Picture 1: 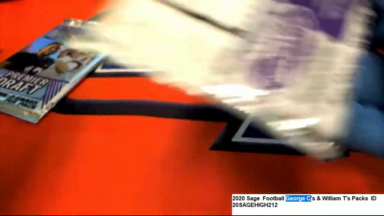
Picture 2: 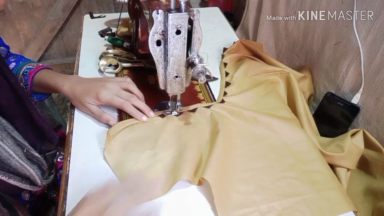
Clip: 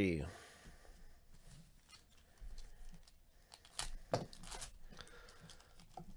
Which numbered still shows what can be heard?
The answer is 1